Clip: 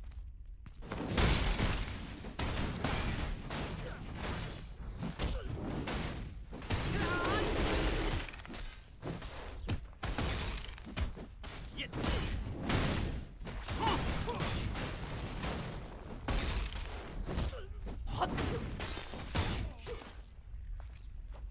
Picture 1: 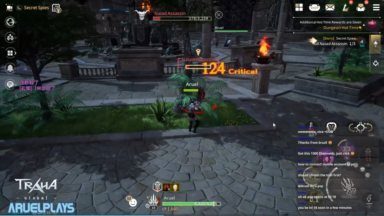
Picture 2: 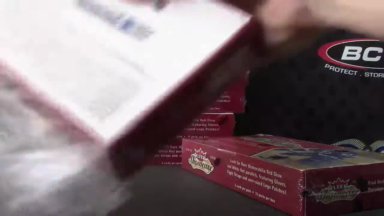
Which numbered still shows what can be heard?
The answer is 1